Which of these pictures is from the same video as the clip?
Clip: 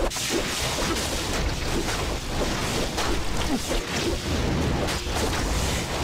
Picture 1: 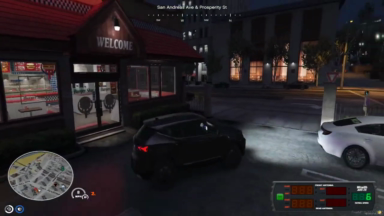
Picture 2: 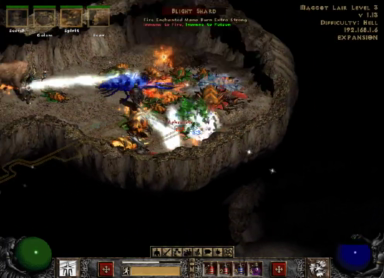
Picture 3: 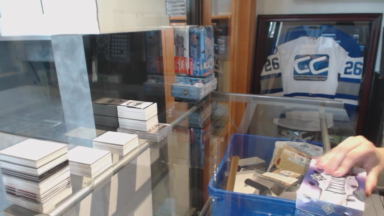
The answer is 2